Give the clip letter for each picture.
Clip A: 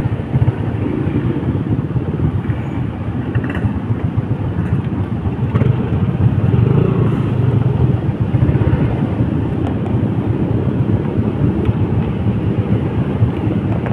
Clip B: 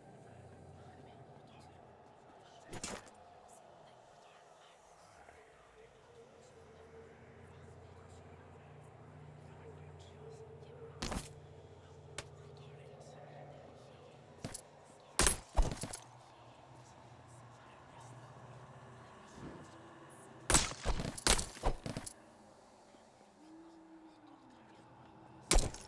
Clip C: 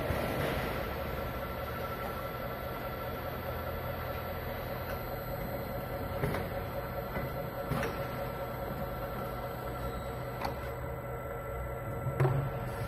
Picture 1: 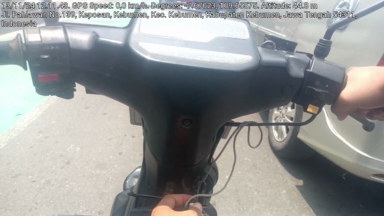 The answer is A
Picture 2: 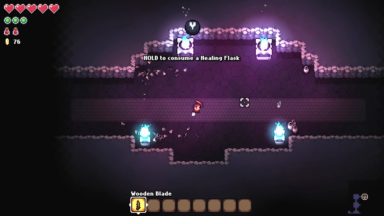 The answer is B